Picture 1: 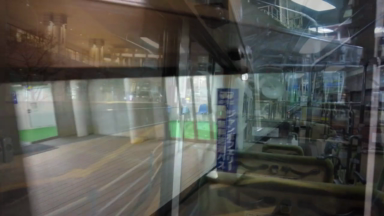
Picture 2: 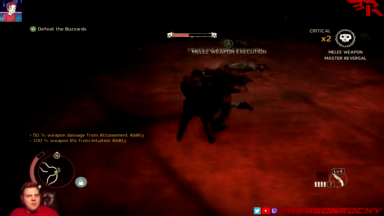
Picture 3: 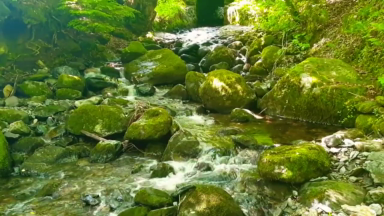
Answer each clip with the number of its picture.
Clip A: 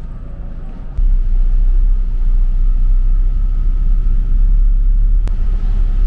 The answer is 1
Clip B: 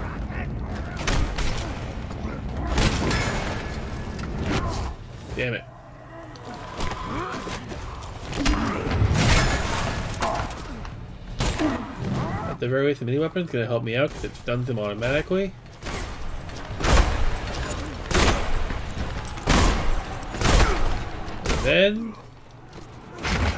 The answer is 2